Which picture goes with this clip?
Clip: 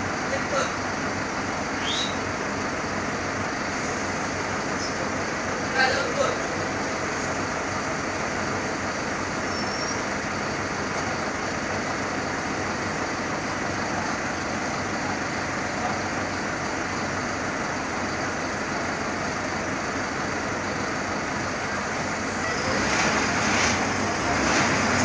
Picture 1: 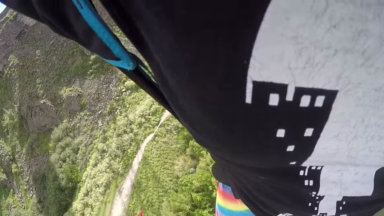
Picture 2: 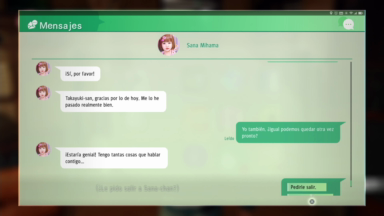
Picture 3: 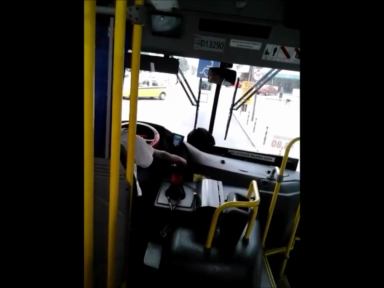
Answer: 3